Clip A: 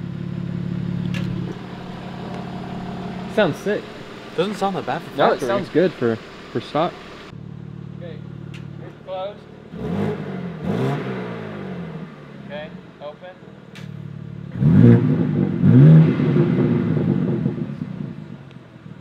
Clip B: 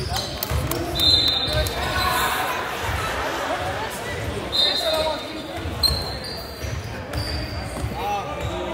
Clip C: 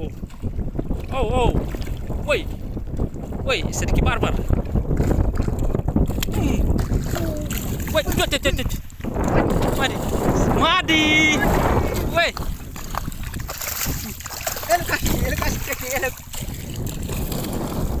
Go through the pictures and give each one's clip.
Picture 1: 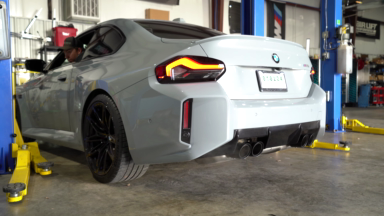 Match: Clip A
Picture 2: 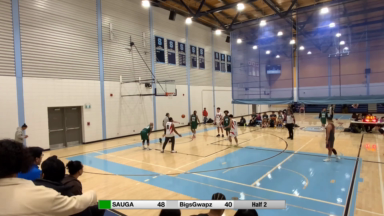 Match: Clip B